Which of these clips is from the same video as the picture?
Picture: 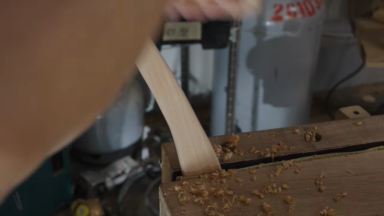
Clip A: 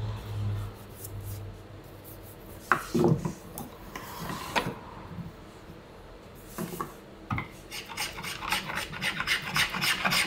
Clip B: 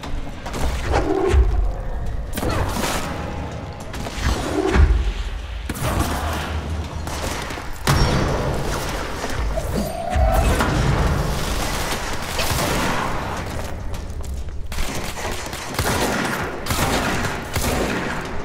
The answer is A